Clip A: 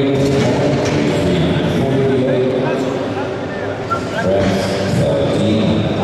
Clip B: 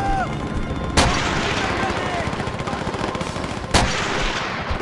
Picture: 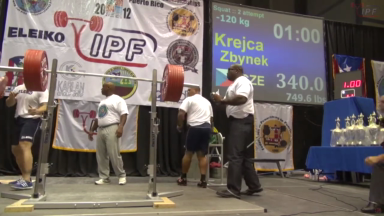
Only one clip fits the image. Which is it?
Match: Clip A